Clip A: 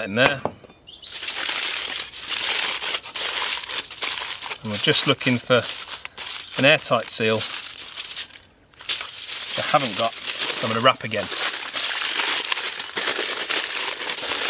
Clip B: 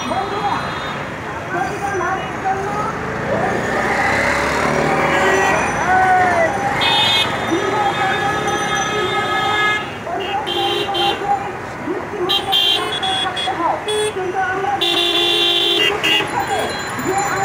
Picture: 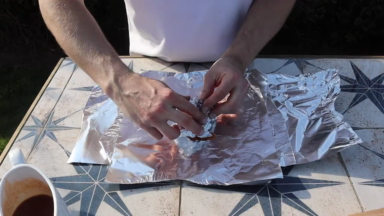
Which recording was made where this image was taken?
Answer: A